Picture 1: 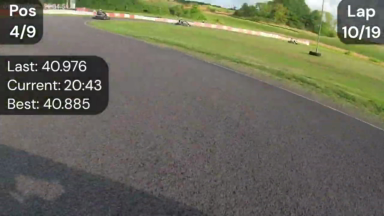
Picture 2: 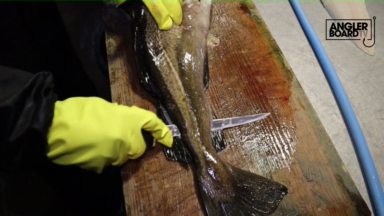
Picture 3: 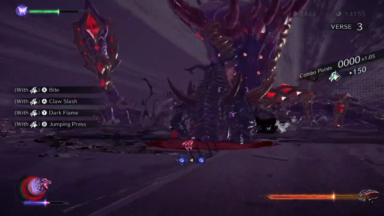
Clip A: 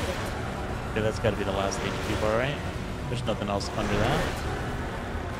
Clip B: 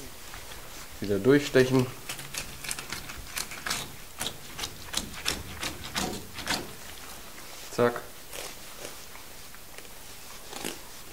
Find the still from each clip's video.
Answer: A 3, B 2